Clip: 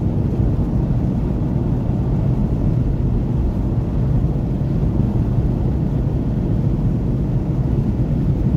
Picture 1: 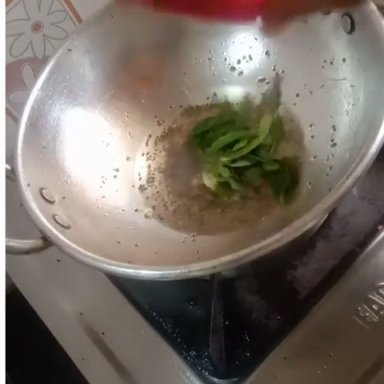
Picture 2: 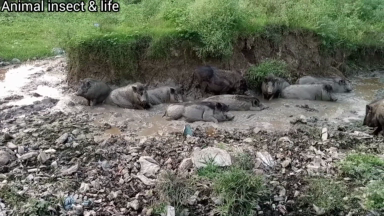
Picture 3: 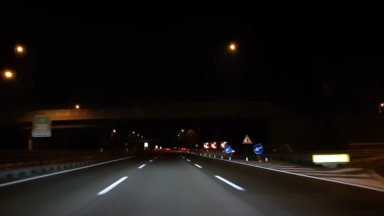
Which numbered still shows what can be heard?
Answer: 3